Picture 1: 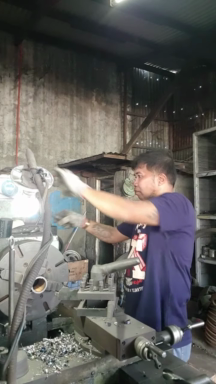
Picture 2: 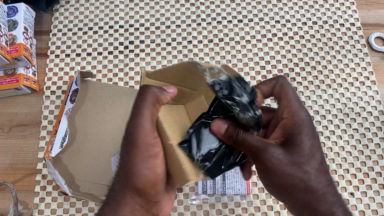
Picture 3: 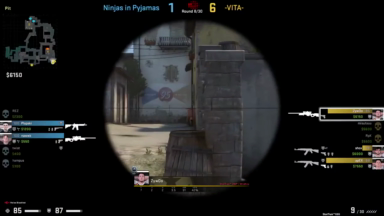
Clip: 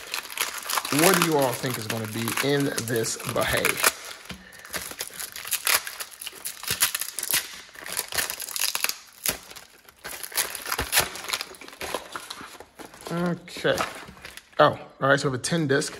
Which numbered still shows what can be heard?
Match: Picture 2